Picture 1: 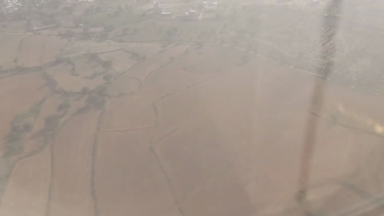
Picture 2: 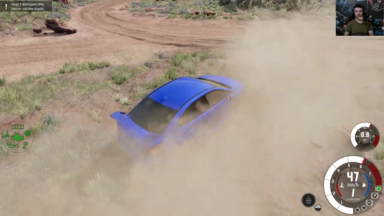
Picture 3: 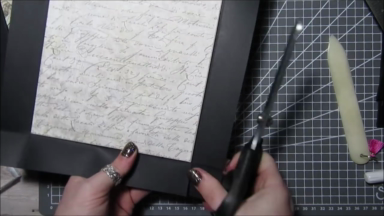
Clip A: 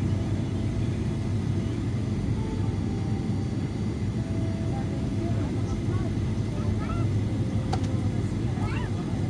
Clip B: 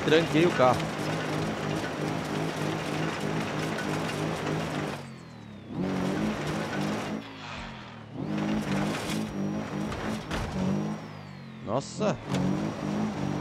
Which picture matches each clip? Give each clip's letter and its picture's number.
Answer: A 1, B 2